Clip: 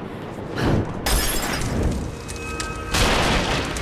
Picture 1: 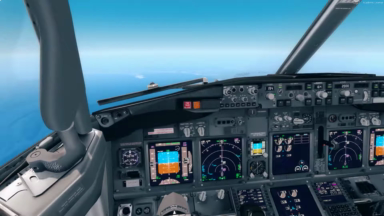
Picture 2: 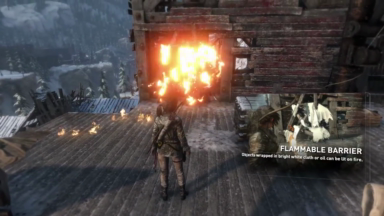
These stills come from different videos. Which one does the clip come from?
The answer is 2